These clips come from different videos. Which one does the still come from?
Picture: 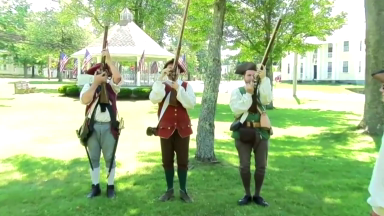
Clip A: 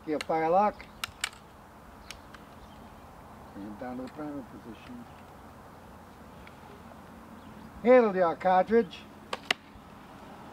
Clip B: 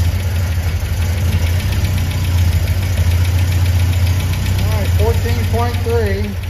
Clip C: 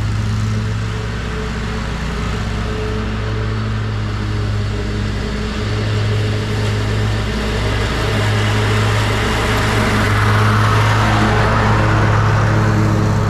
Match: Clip A